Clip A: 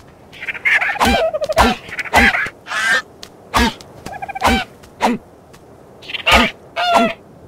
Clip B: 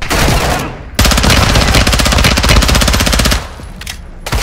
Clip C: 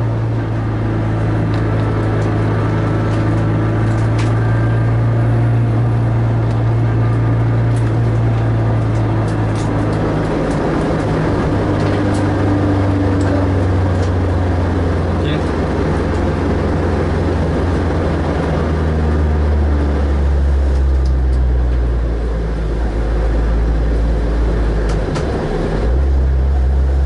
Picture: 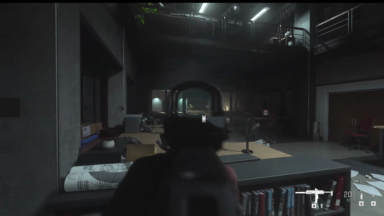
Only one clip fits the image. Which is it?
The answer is B